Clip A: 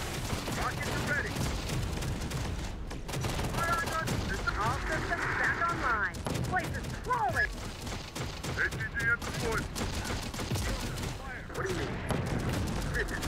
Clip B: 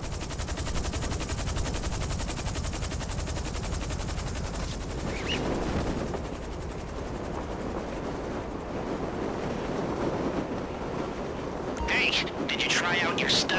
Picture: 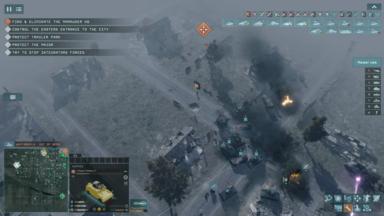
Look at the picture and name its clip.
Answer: A